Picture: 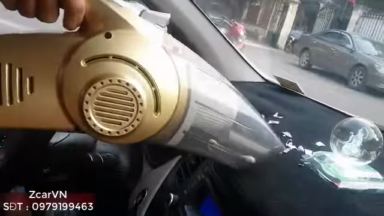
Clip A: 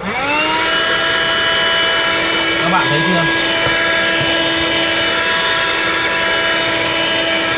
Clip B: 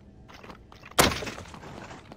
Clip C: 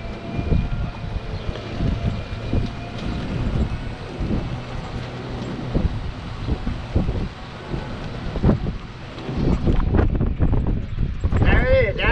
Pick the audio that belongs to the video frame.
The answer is A